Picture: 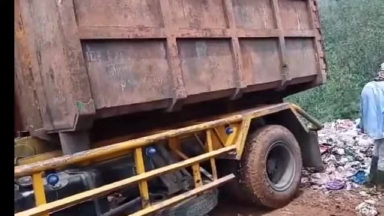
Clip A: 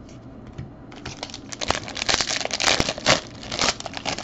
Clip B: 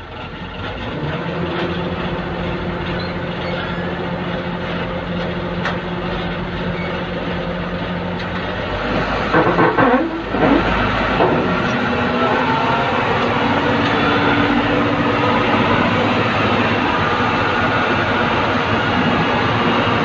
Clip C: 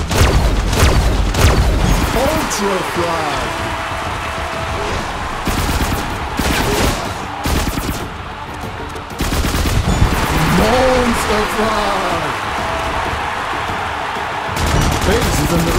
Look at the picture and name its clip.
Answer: B